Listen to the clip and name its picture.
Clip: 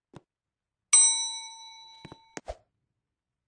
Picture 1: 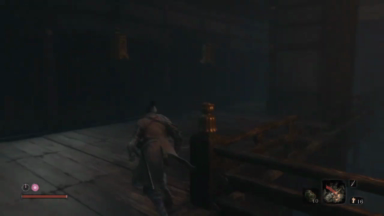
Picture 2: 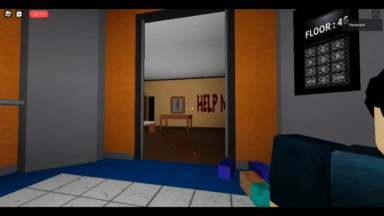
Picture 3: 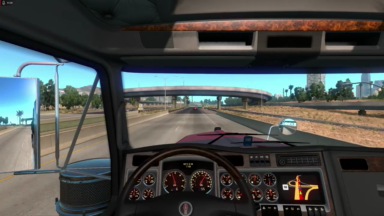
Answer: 2